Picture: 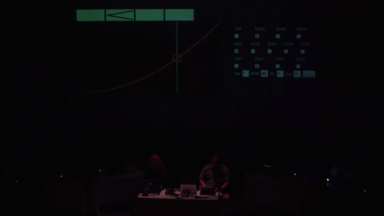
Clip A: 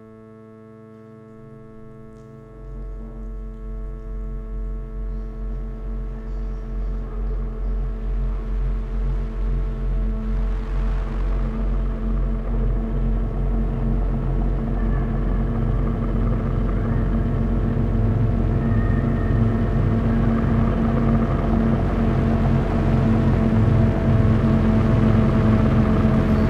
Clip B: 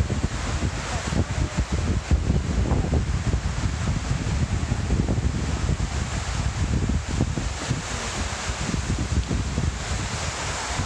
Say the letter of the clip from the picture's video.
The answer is A